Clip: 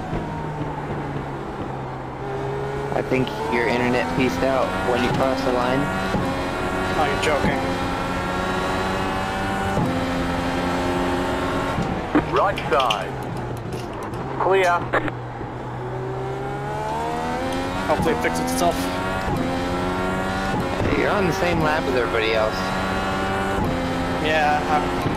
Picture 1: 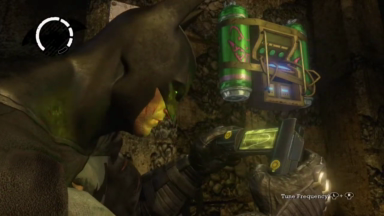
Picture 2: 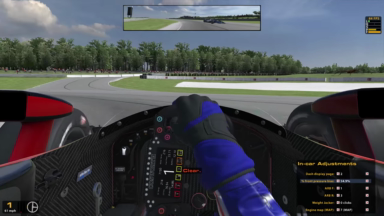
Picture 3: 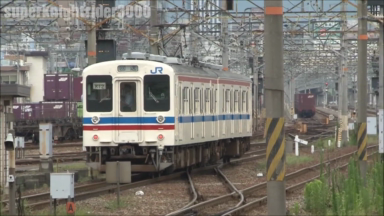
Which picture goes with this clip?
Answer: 2